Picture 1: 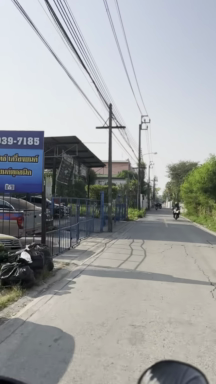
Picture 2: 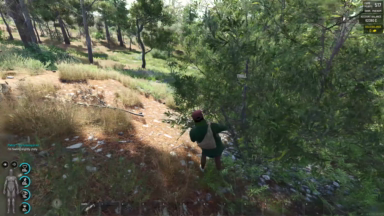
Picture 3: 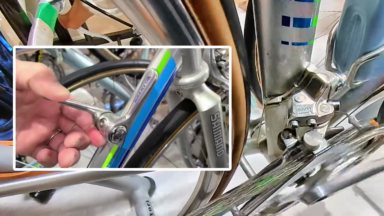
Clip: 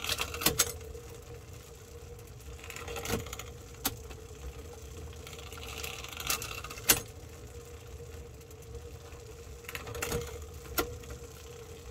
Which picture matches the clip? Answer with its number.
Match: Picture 3